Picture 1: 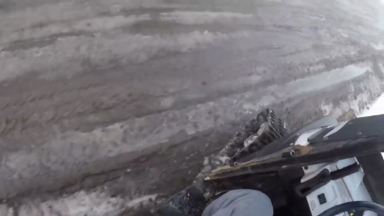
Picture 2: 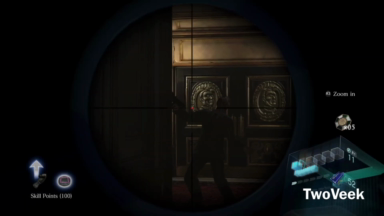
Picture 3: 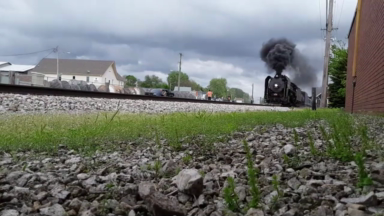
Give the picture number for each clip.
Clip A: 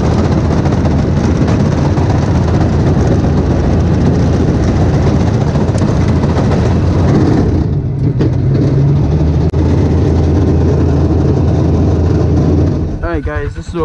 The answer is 1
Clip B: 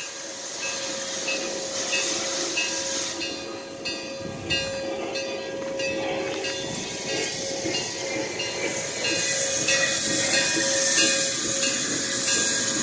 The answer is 3